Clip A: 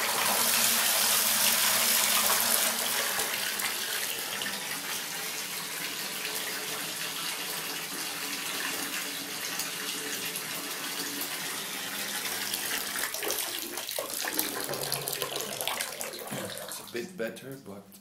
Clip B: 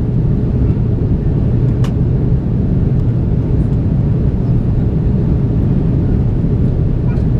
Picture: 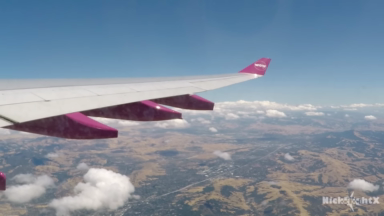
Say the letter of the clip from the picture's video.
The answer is B